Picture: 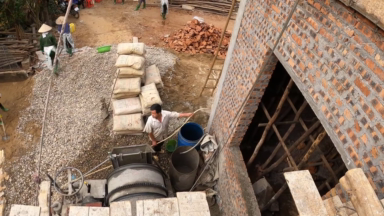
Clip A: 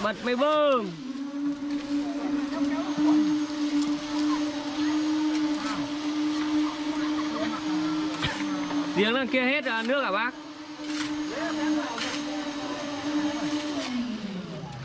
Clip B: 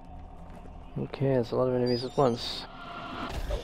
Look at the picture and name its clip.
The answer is A